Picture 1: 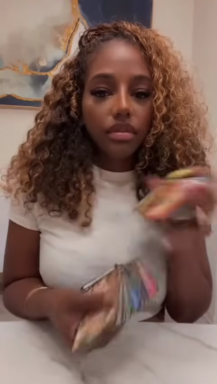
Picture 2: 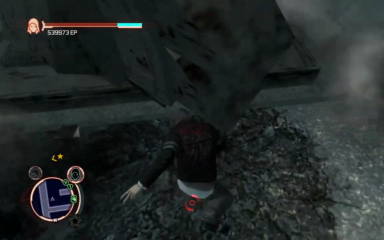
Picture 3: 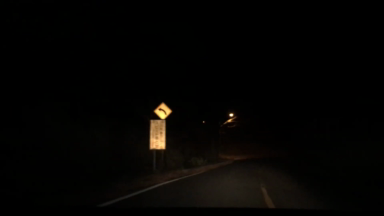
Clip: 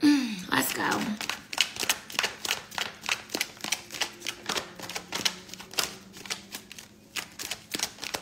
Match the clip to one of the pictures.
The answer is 1